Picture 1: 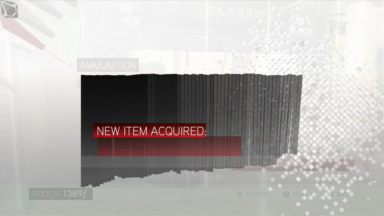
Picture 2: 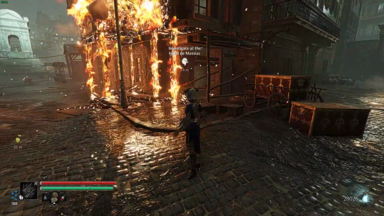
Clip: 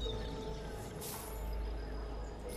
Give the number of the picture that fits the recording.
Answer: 1